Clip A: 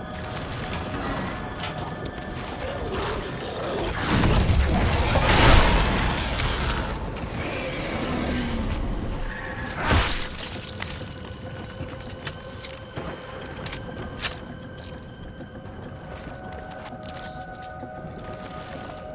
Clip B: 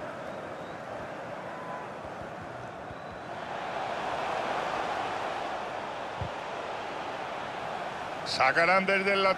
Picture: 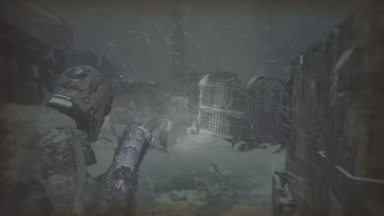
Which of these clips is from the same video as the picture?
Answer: A